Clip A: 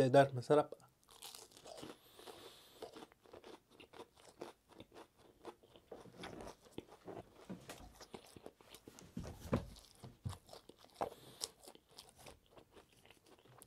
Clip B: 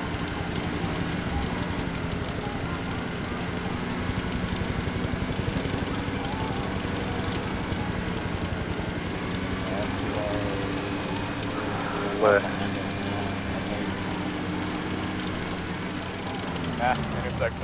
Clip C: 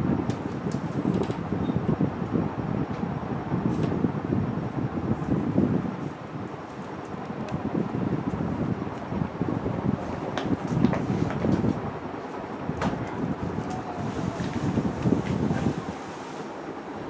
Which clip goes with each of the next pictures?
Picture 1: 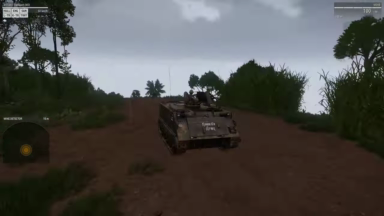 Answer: B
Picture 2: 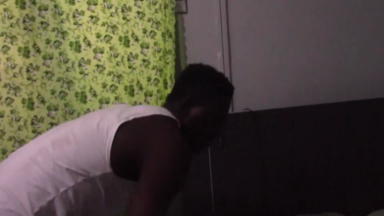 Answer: C